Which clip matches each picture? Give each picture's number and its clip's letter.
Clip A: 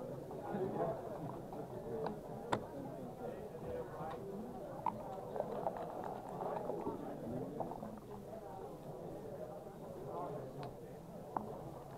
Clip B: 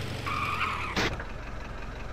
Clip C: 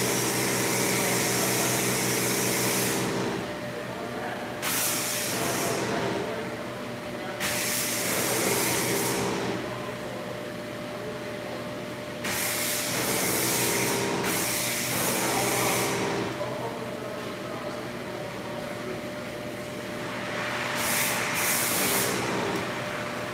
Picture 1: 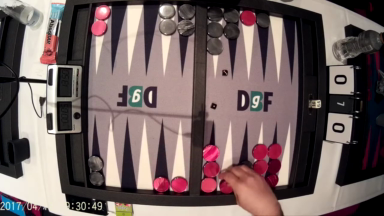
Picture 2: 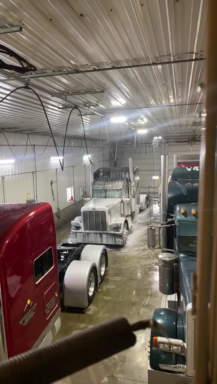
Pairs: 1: A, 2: C